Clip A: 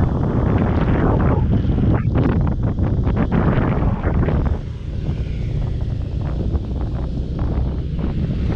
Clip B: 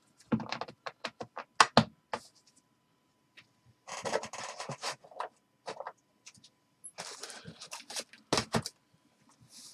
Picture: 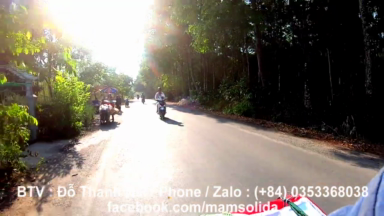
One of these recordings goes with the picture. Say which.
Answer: A